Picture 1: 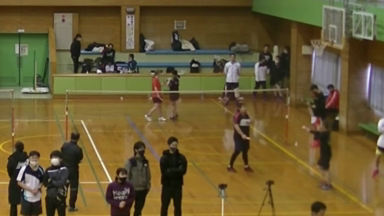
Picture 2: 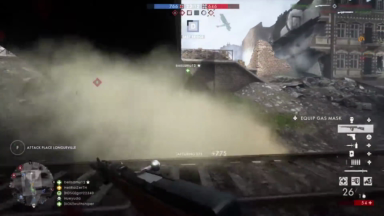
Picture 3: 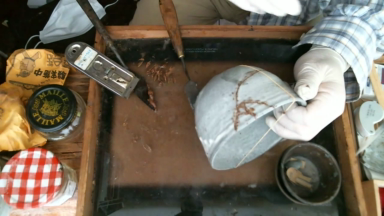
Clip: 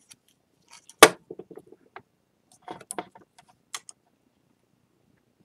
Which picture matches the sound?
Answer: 3